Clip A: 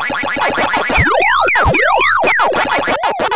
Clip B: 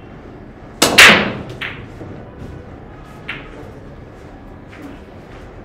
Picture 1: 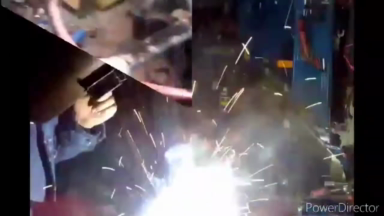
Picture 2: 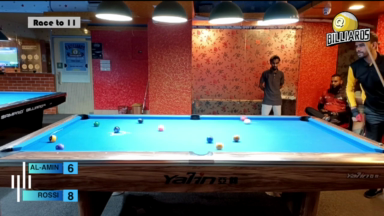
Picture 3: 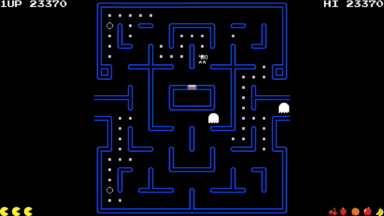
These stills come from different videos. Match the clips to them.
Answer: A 3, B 2